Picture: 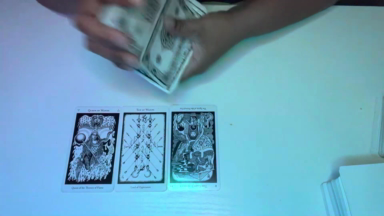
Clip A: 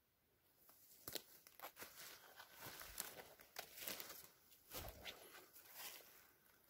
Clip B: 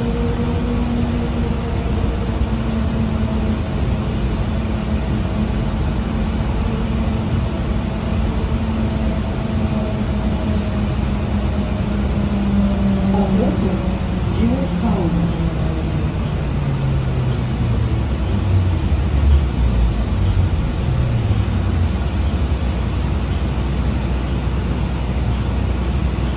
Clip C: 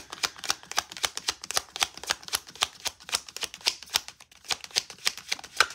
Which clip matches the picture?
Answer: C